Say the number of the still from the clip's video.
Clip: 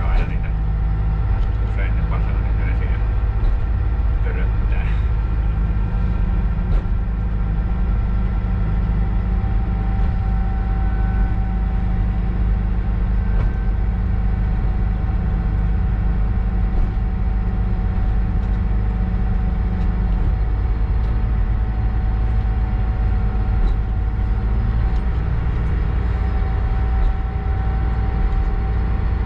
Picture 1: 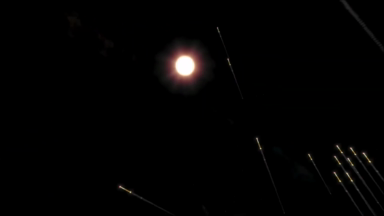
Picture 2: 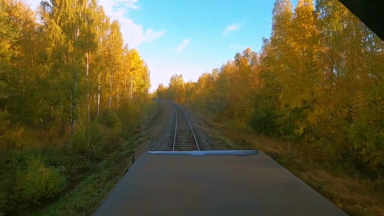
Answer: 2